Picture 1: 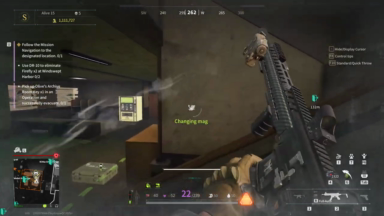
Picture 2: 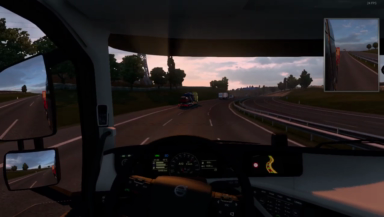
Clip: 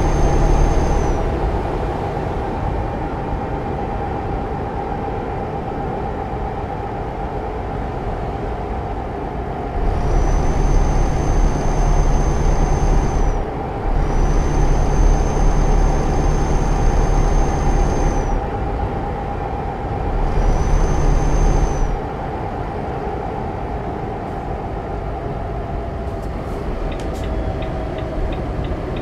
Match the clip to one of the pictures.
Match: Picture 2